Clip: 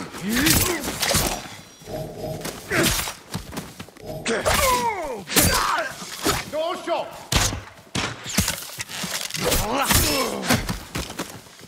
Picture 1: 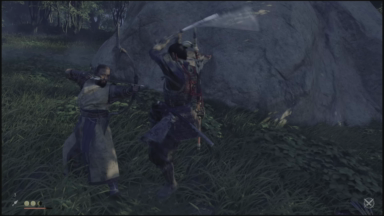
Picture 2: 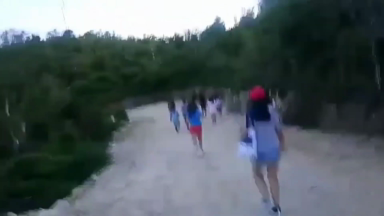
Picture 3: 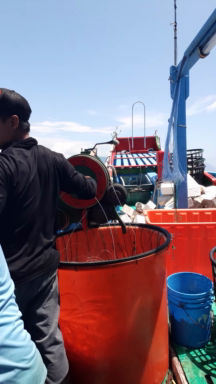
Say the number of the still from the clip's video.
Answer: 1